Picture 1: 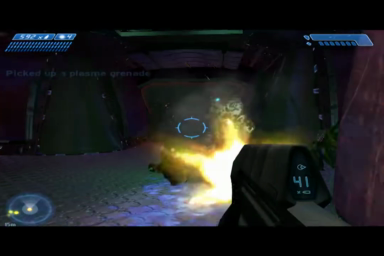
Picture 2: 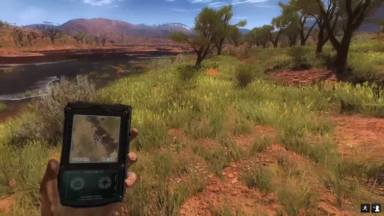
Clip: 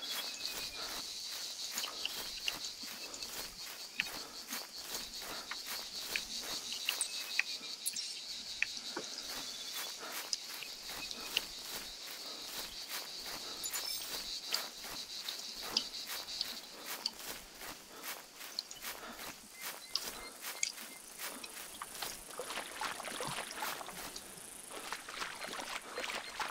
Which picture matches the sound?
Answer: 2